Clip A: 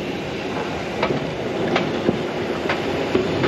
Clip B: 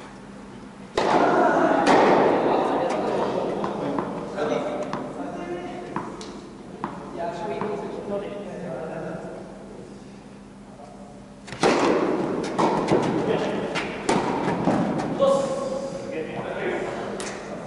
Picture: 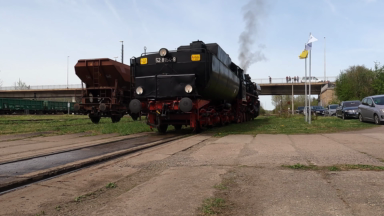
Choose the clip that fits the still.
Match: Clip A